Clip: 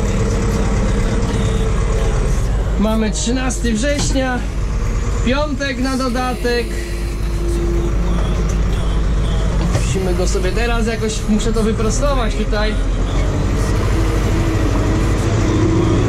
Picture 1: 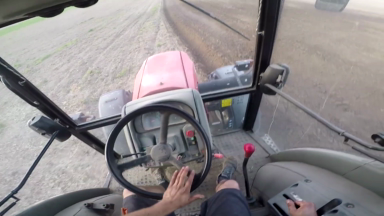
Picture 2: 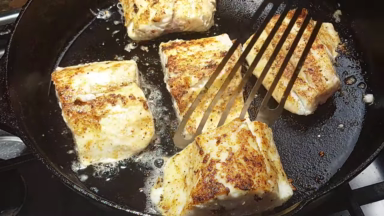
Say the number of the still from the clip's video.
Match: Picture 1